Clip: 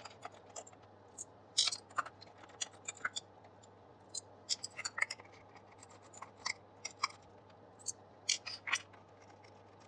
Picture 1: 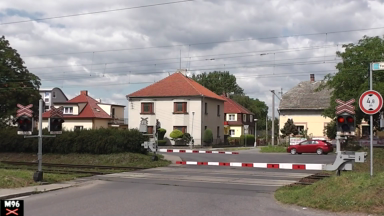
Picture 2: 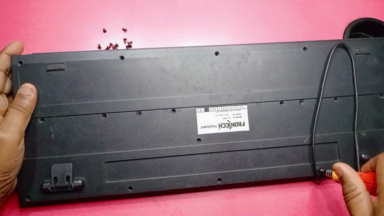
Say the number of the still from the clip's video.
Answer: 2